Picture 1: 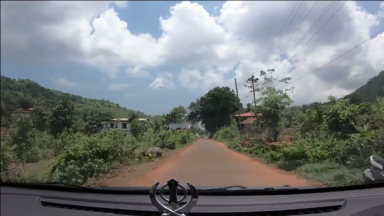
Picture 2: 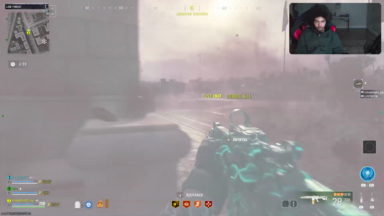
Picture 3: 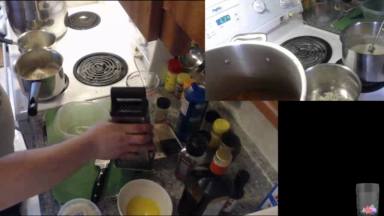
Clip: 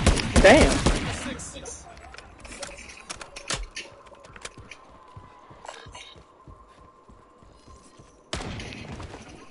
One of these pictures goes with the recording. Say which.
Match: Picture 2